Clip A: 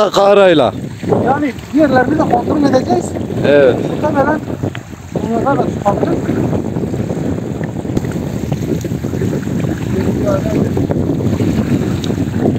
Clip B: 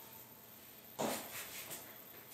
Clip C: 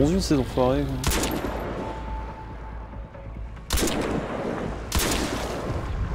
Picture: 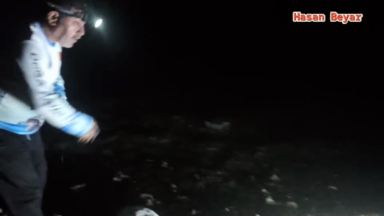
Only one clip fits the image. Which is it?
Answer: A